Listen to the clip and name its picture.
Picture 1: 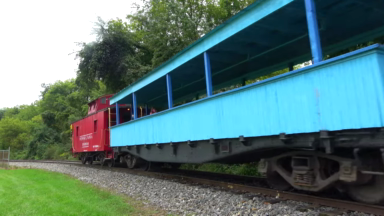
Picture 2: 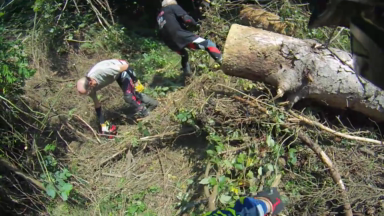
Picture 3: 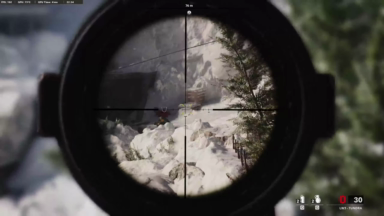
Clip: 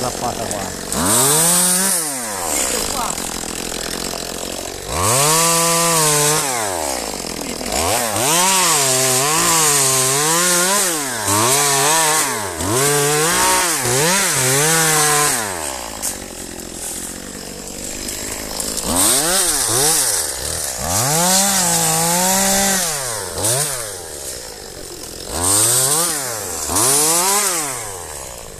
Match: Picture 2